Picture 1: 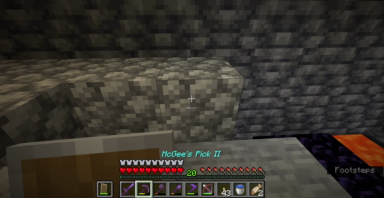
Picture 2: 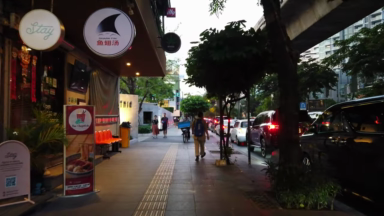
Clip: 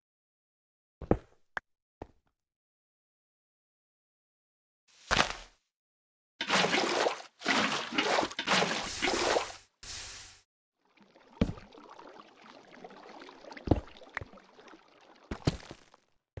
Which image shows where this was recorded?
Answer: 1